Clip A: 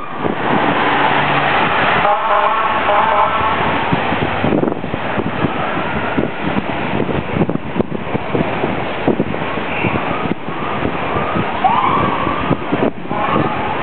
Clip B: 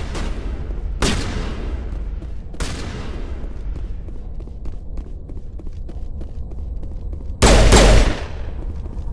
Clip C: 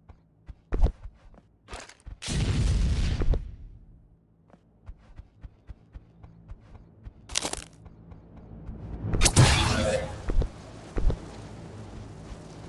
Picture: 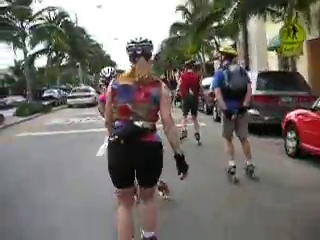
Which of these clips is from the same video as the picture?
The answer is A